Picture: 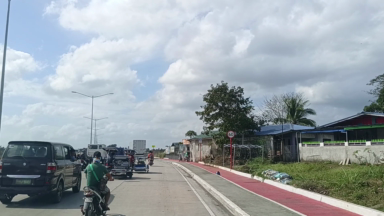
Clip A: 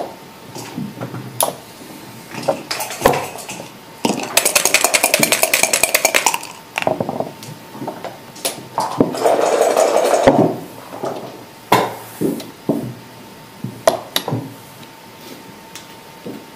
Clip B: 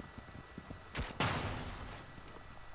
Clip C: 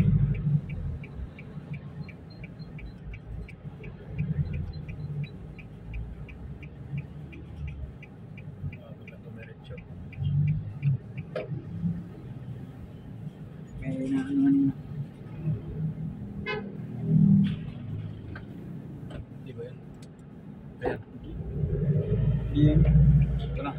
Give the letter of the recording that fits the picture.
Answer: C